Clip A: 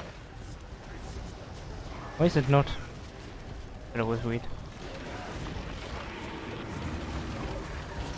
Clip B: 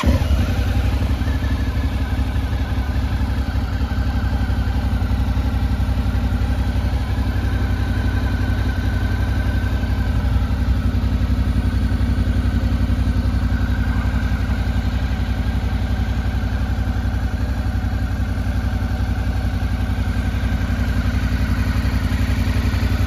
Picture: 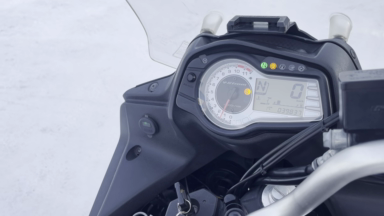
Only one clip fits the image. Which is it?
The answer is B